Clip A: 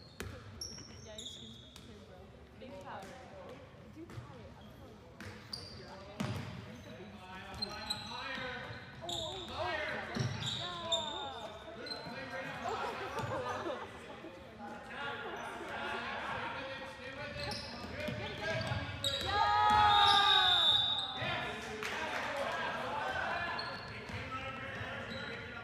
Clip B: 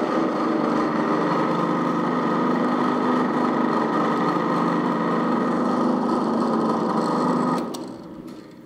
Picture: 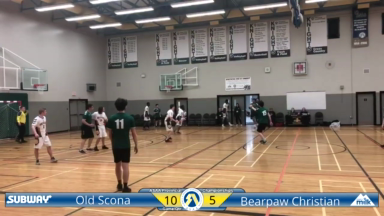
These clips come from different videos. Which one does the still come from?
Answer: A